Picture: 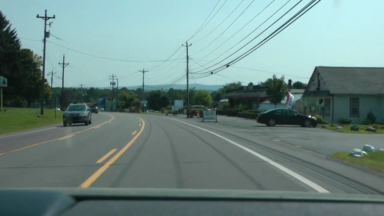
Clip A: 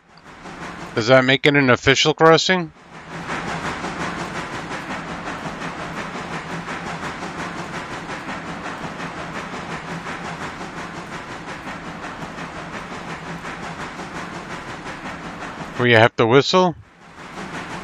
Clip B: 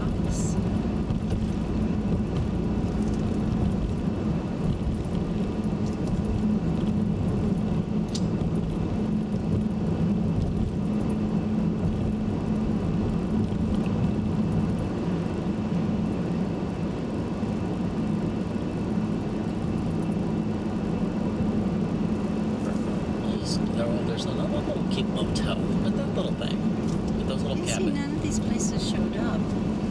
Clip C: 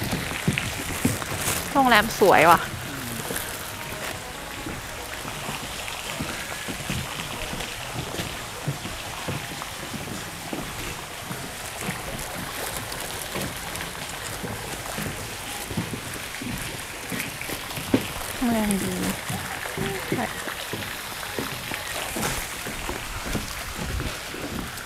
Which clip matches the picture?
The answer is B